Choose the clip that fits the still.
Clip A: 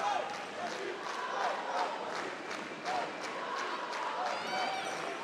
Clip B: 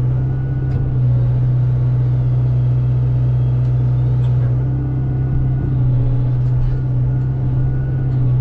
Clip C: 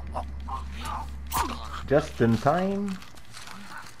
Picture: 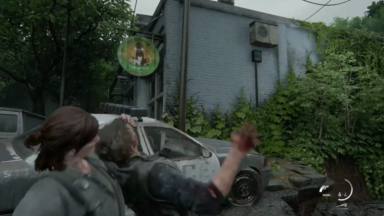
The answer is C